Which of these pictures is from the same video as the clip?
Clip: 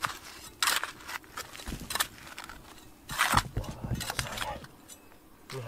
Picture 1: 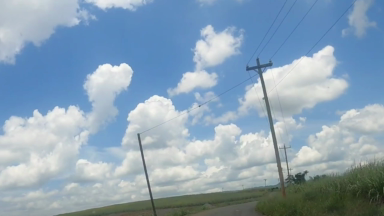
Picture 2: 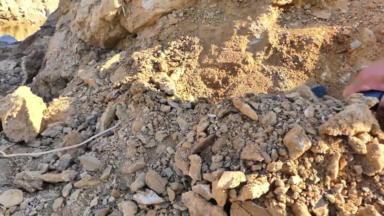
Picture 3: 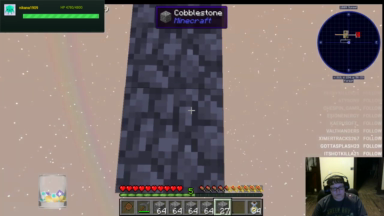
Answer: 2